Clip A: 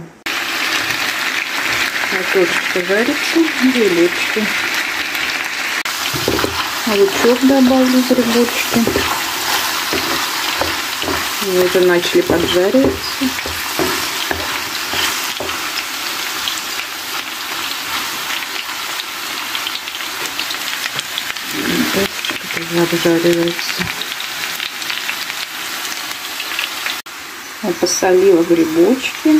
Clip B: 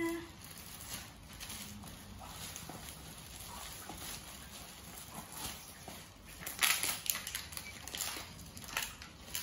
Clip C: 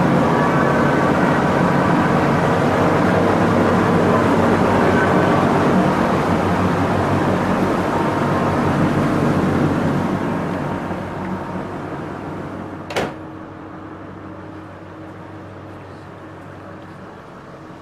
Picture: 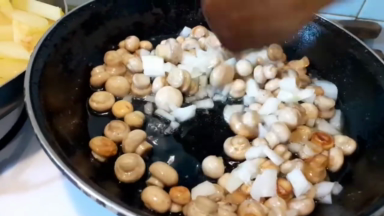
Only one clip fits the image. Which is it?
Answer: A